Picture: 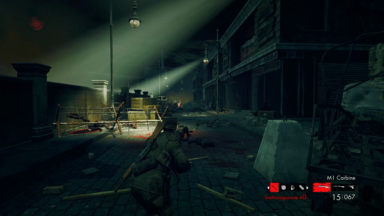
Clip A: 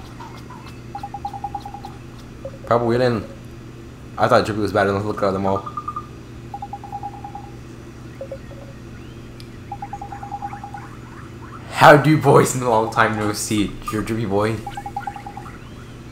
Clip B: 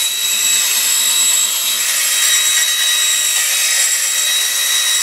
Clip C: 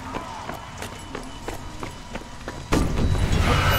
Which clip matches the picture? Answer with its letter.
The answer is C